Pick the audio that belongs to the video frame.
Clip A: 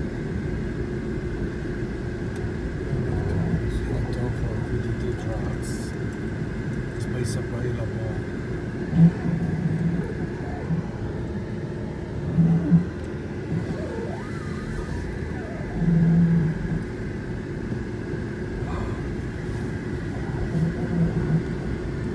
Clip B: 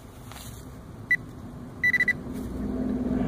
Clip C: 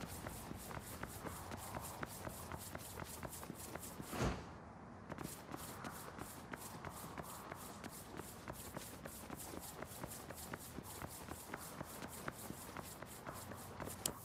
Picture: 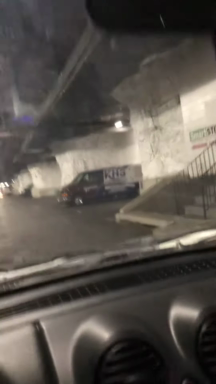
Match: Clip A